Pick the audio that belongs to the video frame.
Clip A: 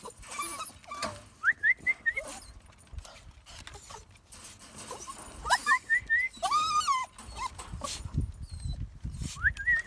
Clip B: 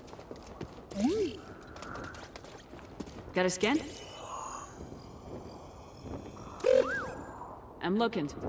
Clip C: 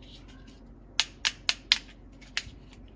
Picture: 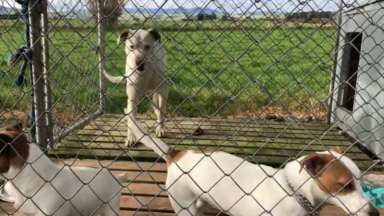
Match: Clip A